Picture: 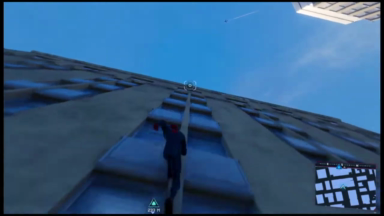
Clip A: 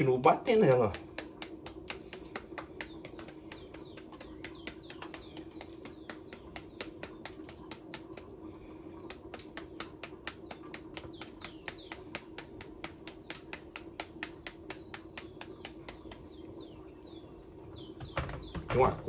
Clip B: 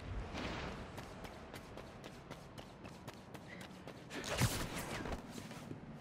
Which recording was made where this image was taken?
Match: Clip B